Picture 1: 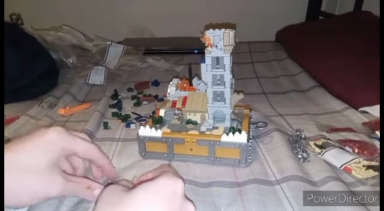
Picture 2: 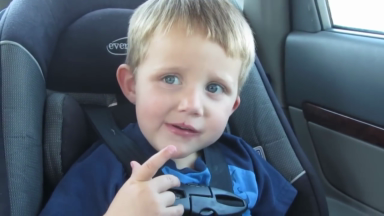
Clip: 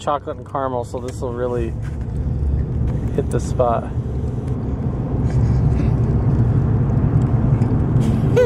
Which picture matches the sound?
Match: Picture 2